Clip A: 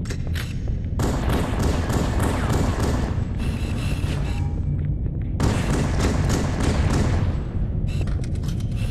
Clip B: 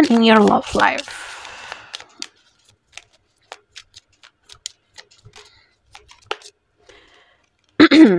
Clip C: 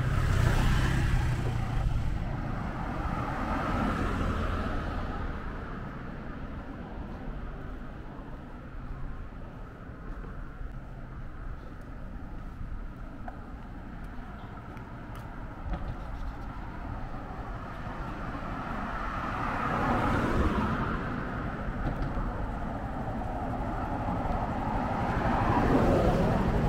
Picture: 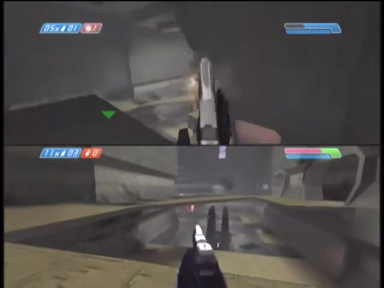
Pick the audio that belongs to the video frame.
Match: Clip A